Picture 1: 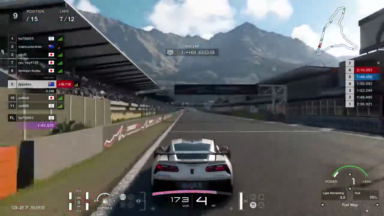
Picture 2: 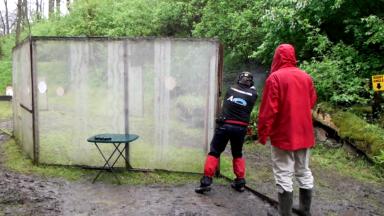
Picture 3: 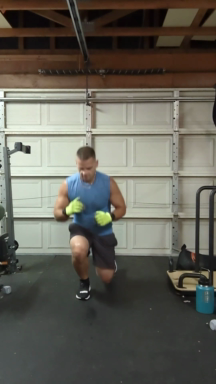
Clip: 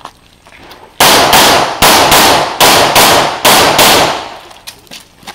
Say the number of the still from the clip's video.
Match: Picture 2